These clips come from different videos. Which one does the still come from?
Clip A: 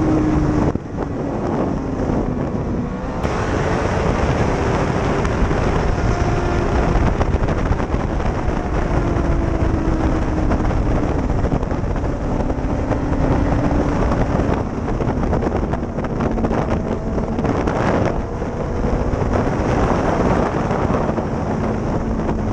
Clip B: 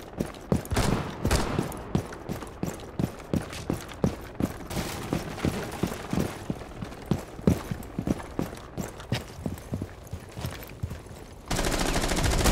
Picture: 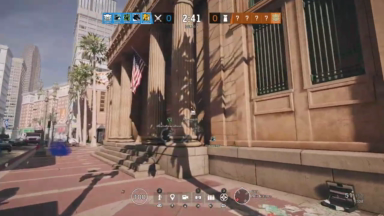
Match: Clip B